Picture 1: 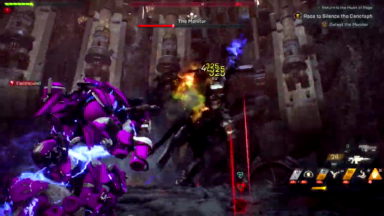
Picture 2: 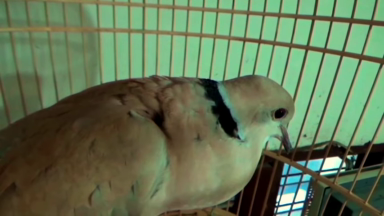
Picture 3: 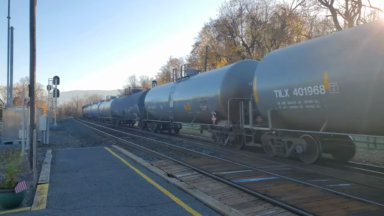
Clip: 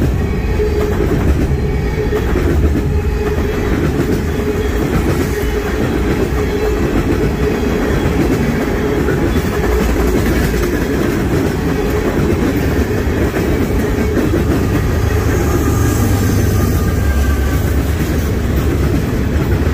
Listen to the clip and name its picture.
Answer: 3